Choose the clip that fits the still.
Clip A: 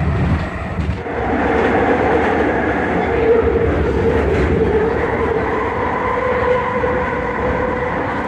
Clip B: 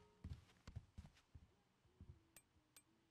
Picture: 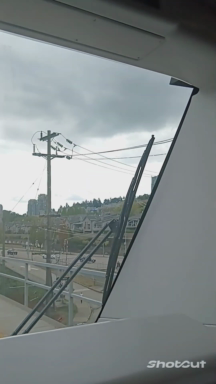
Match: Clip A